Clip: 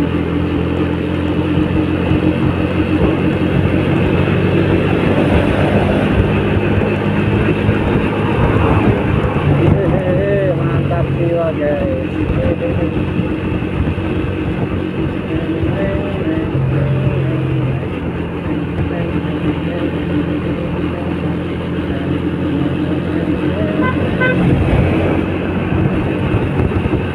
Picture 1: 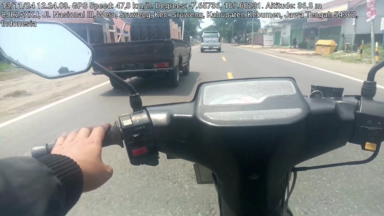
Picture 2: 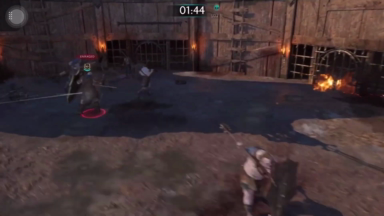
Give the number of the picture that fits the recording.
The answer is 1